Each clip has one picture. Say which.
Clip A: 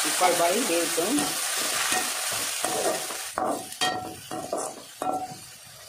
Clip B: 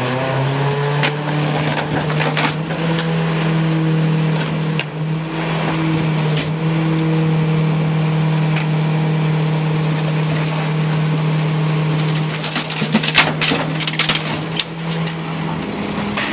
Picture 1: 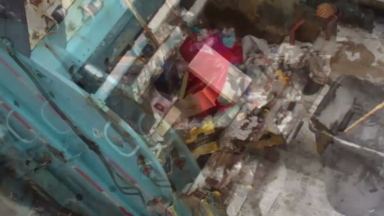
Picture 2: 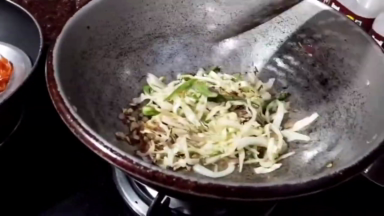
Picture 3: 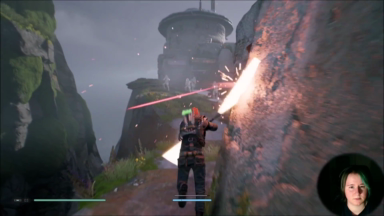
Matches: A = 2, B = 1